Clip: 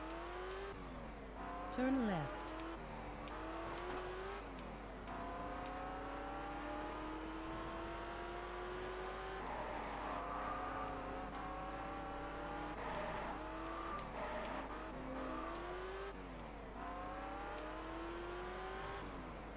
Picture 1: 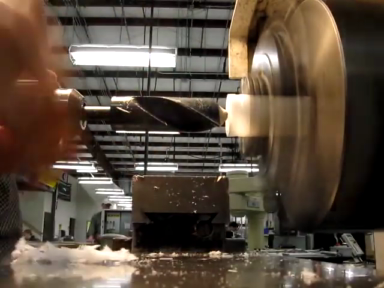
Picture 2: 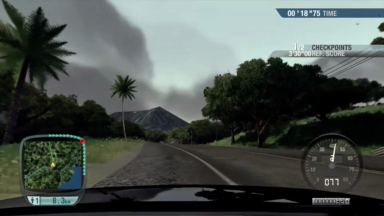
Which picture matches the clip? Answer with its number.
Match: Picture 2